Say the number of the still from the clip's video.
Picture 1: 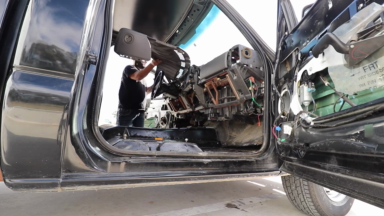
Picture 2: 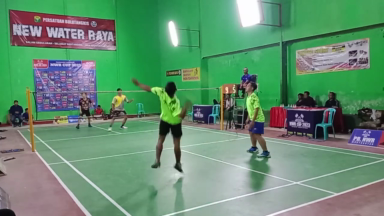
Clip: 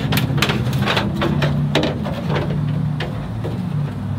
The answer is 1